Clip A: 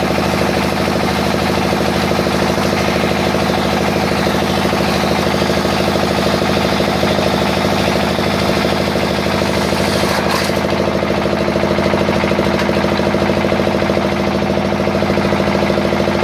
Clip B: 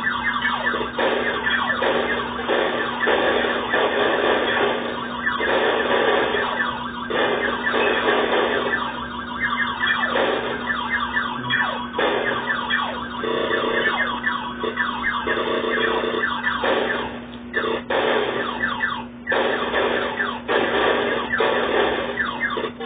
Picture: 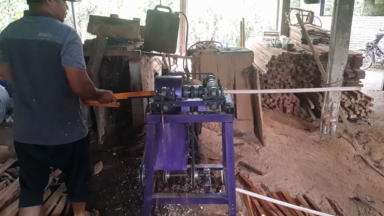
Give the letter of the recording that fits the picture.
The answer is A